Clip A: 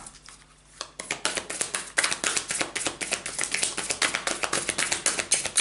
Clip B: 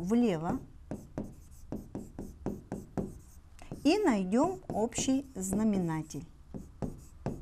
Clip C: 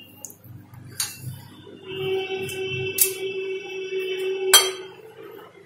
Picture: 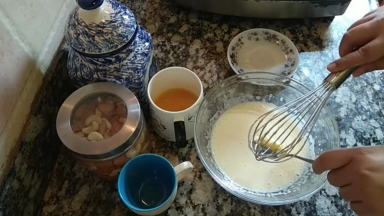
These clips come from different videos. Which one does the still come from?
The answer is C